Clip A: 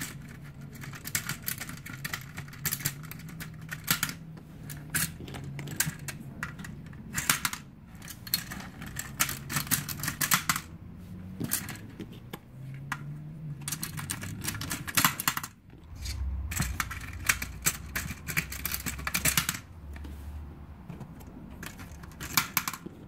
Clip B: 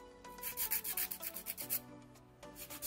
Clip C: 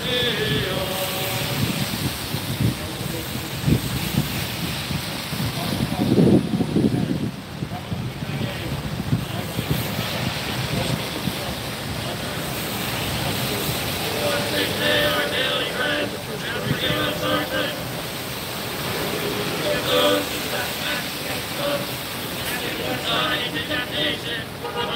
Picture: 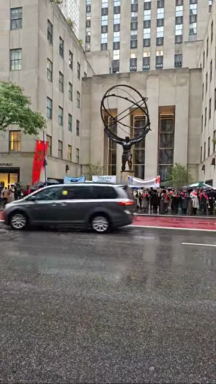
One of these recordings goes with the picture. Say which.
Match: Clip C